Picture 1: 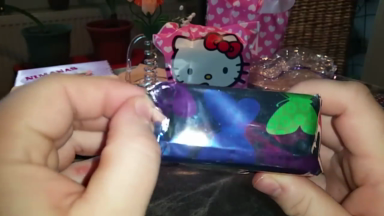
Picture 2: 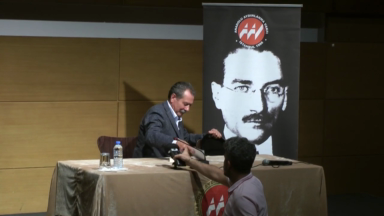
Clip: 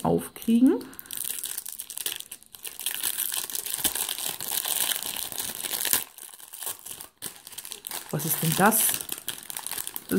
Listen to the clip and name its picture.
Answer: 1